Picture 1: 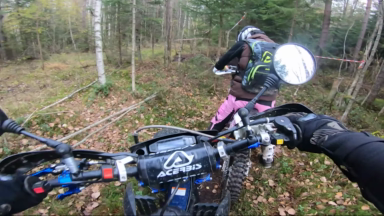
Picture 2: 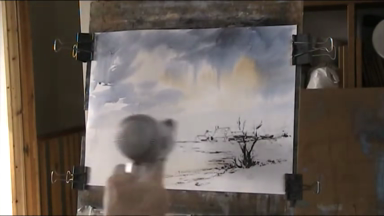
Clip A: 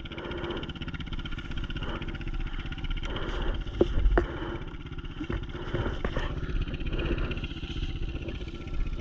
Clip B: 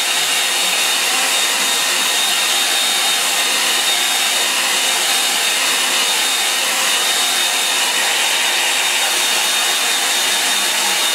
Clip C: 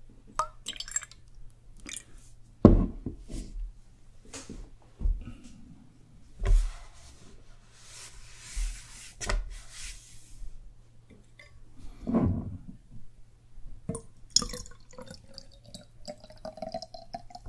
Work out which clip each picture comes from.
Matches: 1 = A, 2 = B